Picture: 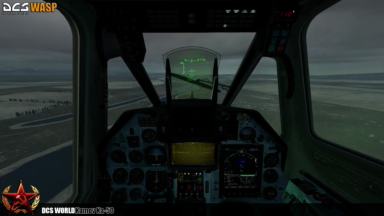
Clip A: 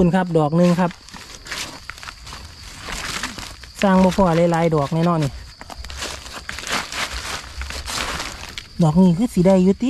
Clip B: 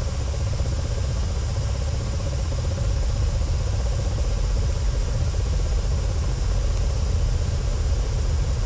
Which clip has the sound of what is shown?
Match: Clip B